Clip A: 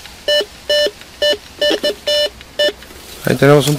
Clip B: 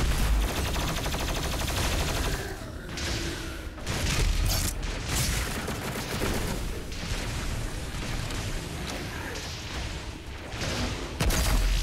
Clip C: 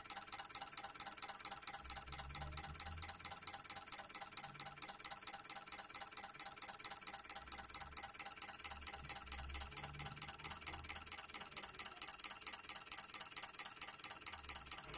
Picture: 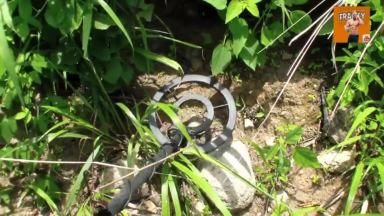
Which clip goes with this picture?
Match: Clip A